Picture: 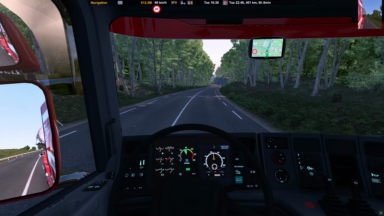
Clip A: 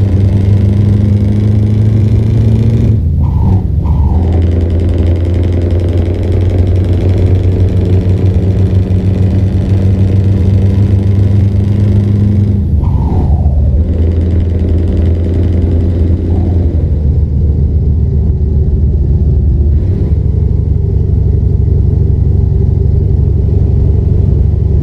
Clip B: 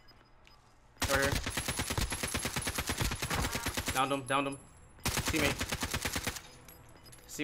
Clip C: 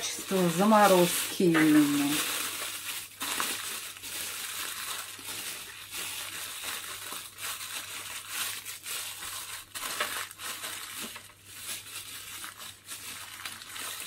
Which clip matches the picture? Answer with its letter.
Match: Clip A